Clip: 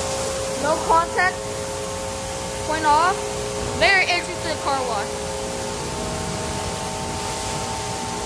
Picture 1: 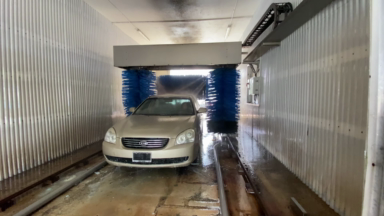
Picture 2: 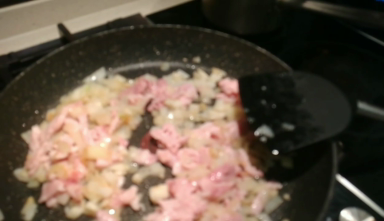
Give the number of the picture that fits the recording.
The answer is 1